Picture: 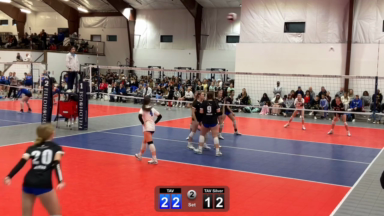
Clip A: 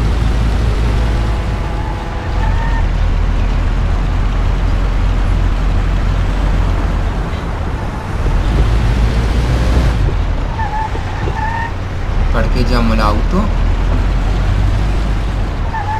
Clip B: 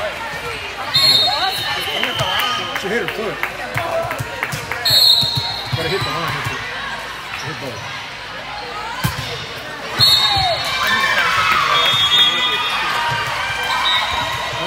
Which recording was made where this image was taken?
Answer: B